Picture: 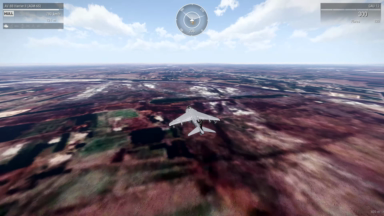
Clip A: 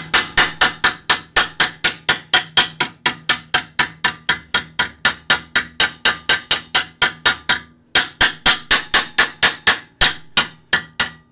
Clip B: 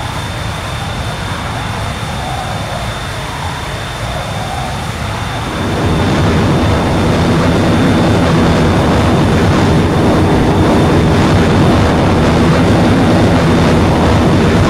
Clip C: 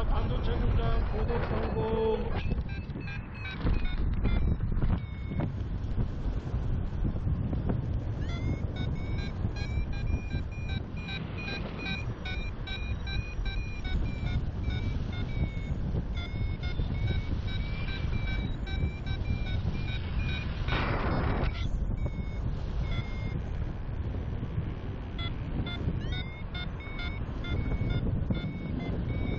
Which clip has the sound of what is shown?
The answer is B